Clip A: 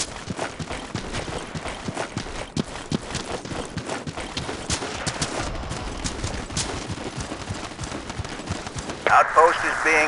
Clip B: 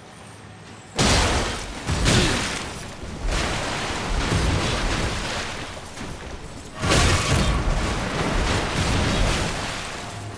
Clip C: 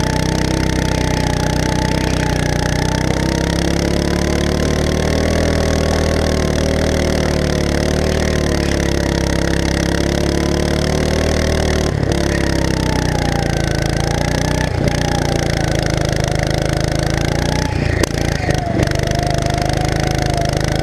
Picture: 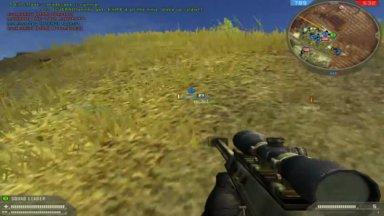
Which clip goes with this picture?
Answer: A